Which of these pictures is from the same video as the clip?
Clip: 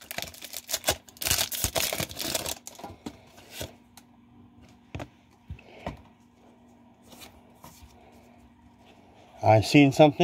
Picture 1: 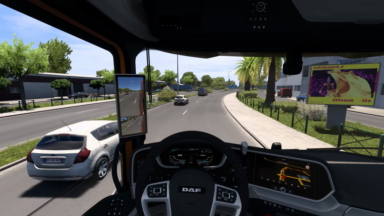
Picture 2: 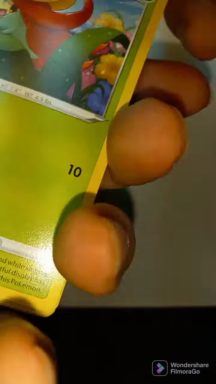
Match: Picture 2